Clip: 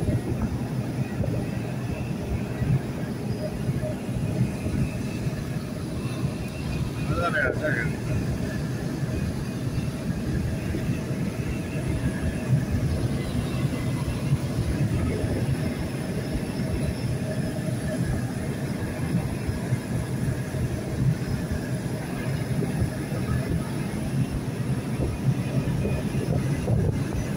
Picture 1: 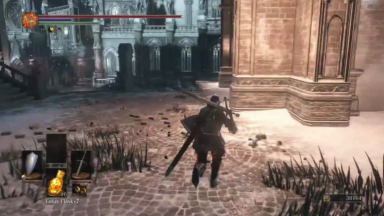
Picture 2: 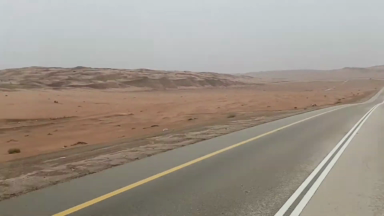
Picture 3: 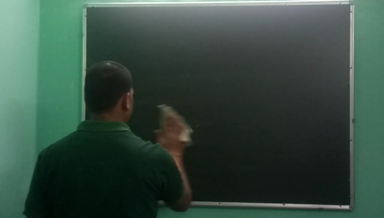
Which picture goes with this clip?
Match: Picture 2